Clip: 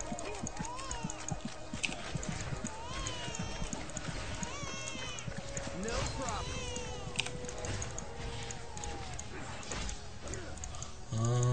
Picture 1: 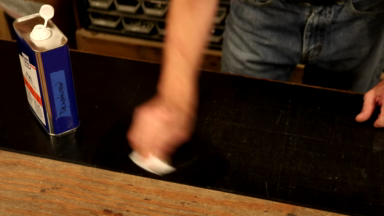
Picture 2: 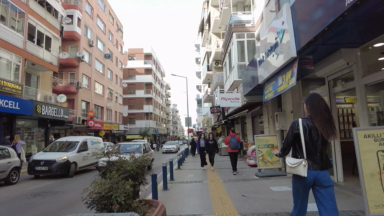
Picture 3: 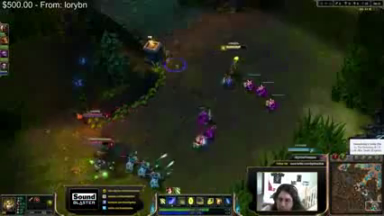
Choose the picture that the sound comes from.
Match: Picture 3